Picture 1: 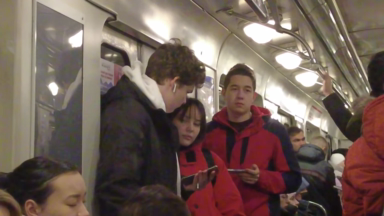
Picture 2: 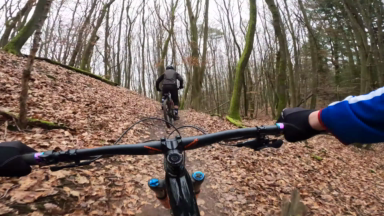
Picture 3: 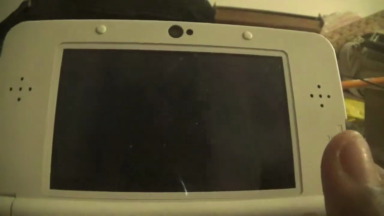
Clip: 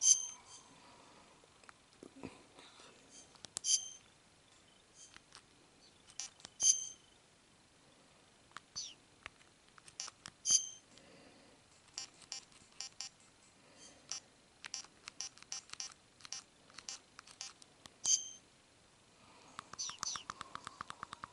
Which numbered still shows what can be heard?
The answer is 3